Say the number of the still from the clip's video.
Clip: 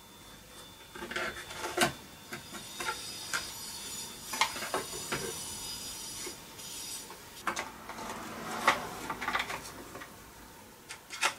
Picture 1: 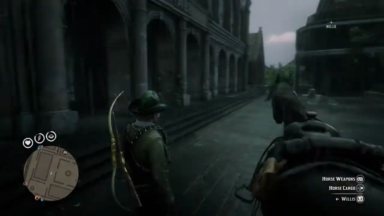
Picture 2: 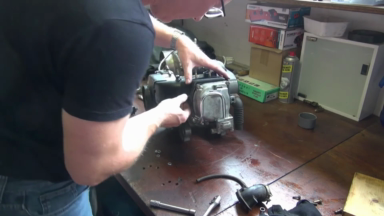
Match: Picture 2